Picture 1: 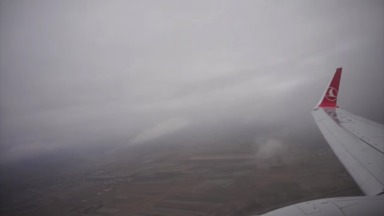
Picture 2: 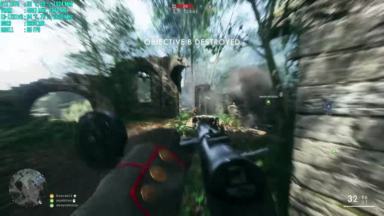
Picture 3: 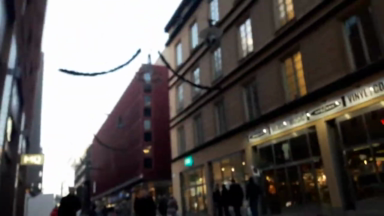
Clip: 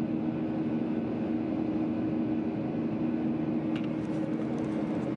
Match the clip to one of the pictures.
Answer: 1